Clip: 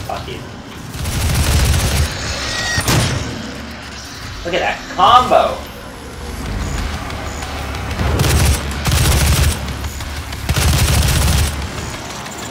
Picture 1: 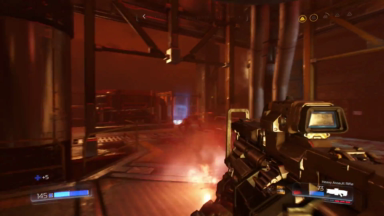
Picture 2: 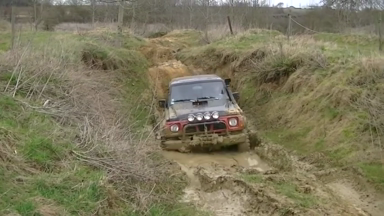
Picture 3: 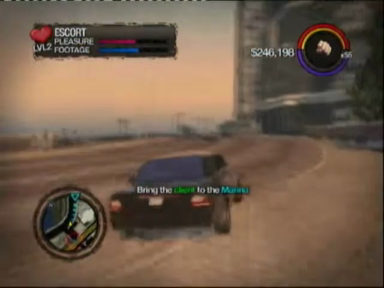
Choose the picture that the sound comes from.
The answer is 1